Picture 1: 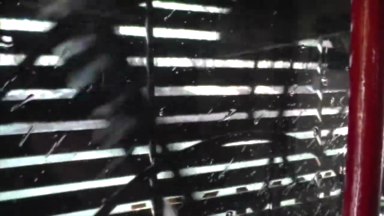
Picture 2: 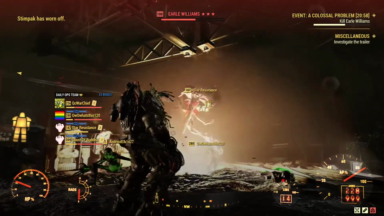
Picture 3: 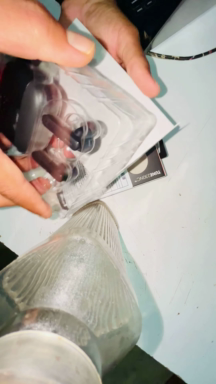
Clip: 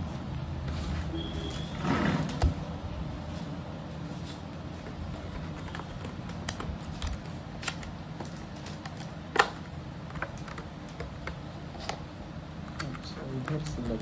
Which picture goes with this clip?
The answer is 3